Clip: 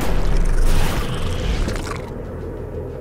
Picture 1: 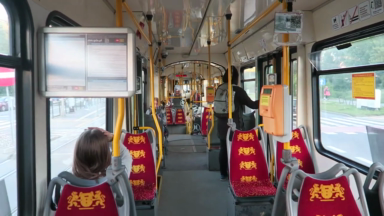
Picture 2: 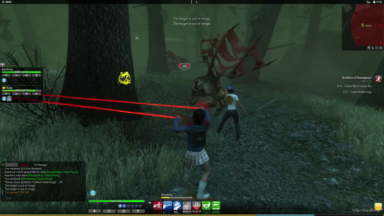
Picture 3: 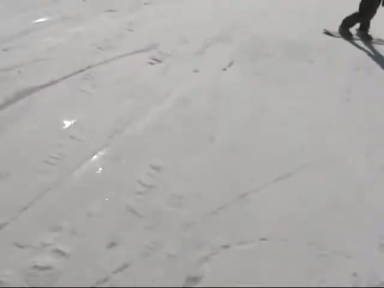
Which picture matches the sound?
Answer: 2